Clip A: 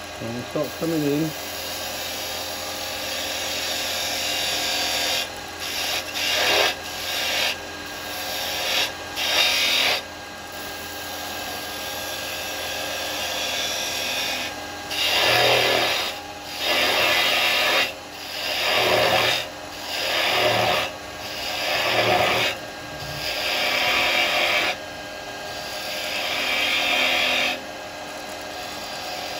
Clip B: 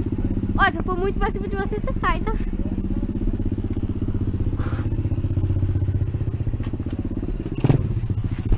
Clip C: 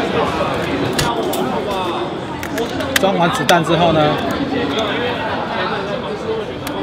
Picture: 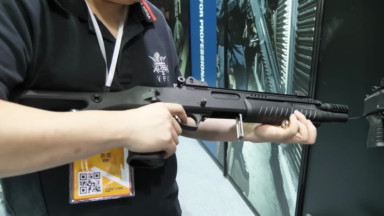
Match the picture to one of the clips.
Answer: C